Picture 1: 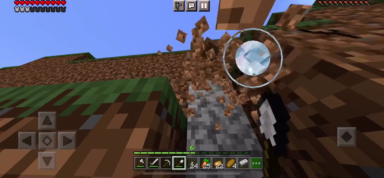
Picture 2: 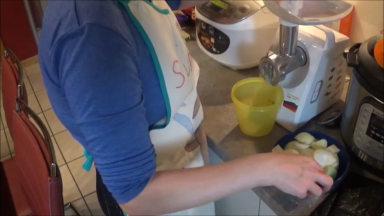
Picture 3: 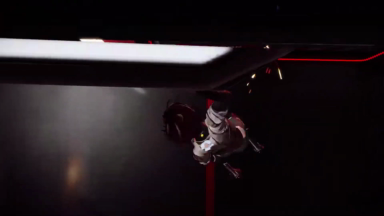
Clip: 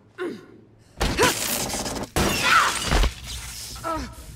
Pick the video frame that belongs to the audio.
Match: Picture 3